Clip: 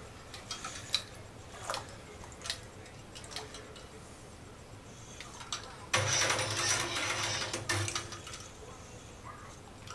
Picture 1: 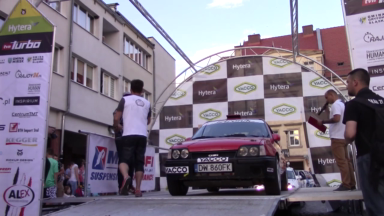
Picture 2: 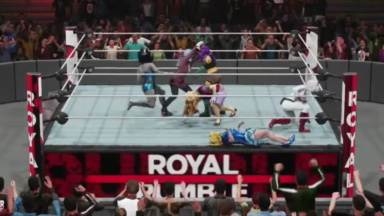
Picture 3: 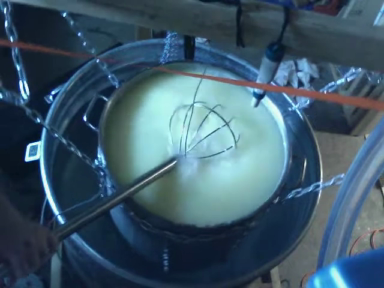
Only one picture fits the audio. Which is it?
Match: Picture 3